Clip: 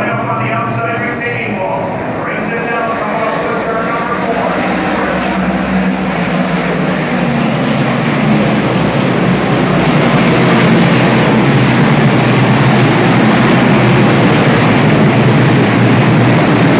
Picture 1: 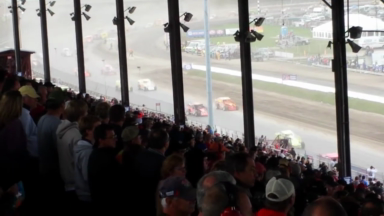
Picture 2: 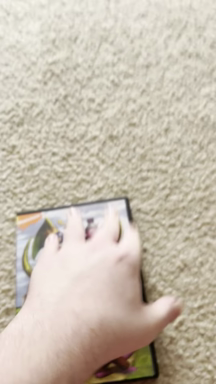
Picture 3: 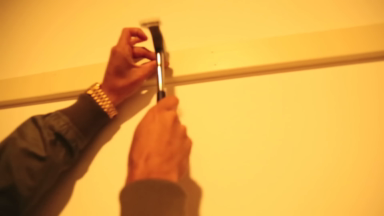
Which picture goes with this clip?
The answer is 1